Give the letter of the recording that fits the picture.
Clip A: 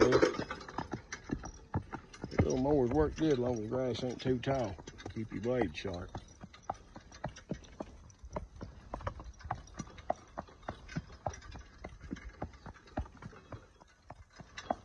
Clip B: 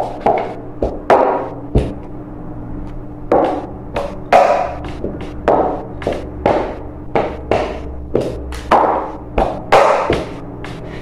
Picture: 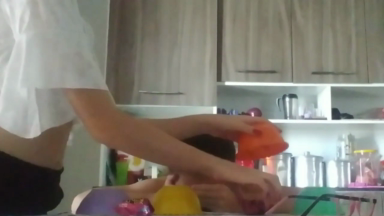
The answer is B